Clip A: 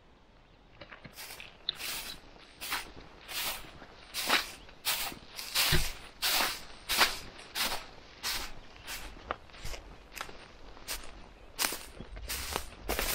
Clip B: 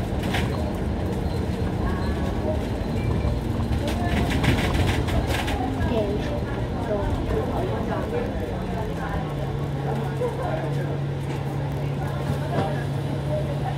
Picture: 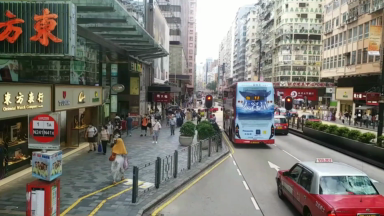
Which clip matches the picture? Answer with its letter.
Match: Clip B